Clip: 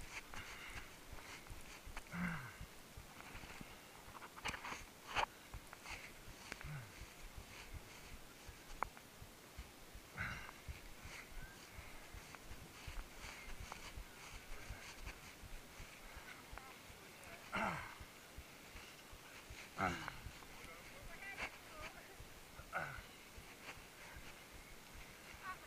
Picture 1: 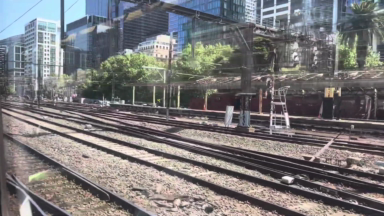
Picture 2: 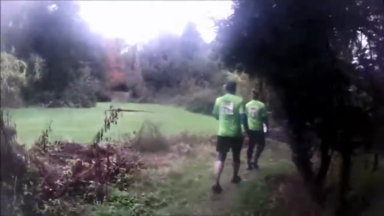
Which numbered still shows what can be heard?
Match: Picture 2